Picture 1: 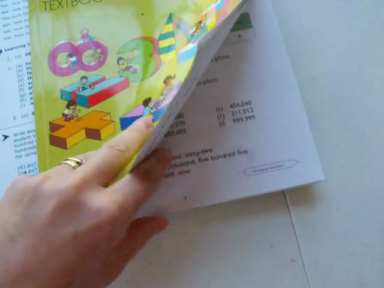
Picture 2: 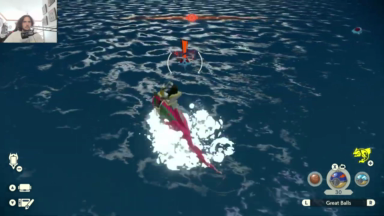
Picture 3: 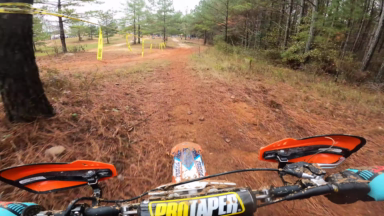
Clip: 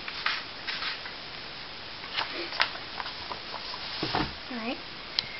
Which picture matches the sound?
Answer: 1